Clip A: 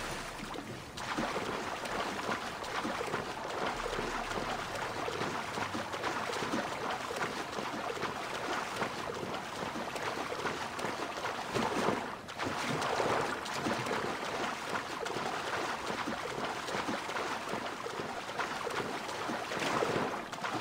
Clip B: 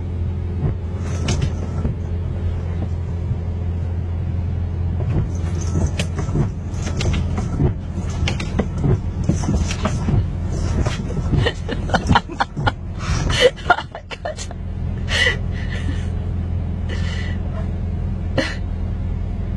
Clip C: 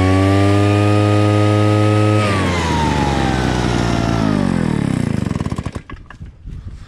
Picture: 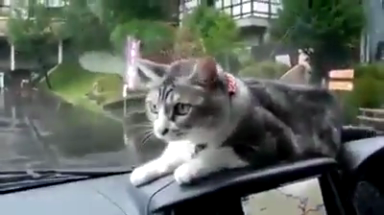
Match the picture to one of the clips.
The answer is B